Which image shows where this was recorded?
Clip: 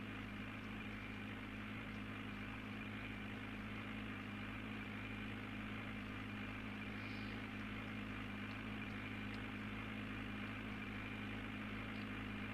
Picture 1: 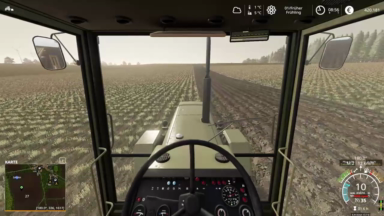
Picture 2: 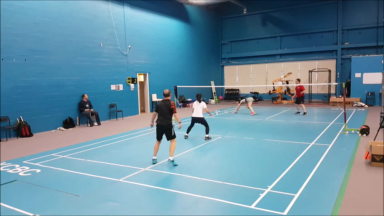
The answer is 1